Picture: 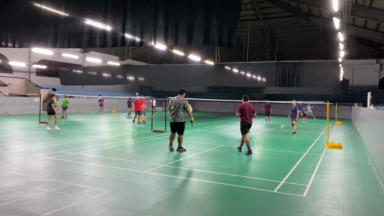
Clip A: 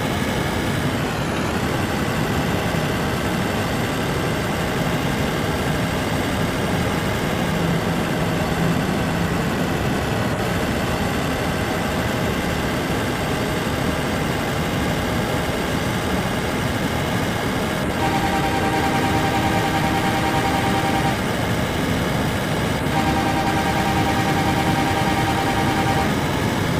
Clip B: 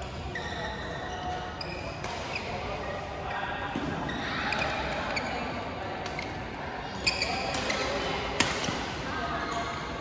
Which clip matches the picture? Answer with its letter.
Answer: B